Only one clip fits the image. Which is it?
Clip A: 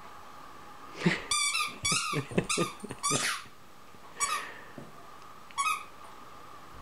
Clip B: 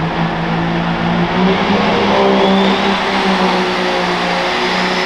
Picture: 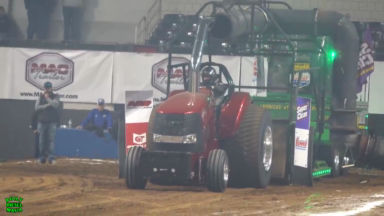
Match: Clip B